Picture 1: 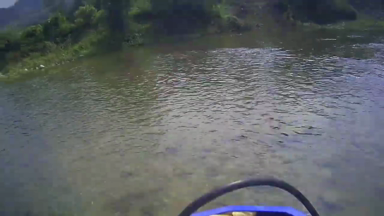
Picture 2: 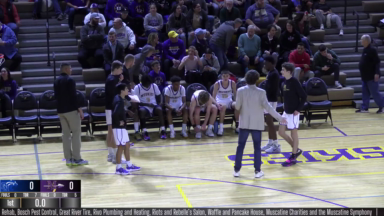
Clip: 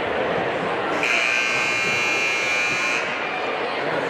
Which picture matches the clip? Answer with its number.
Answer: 2